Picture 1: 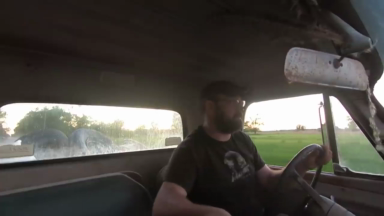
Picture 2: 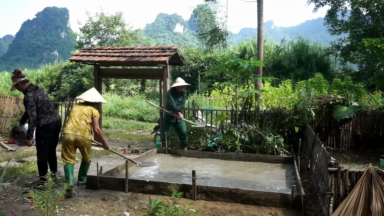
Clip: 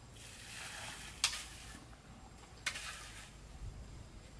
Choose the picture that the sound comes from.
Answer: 2